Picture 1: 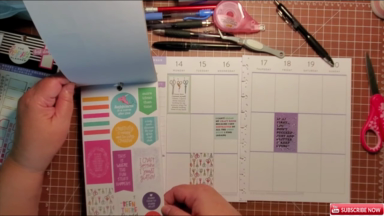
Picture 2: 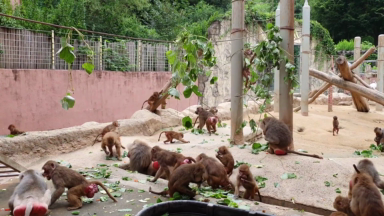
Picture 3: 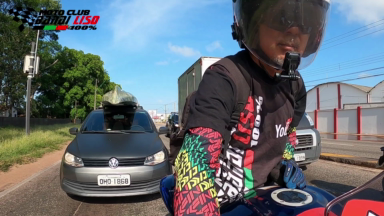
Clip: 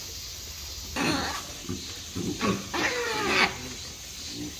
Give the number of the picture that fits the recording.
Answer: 2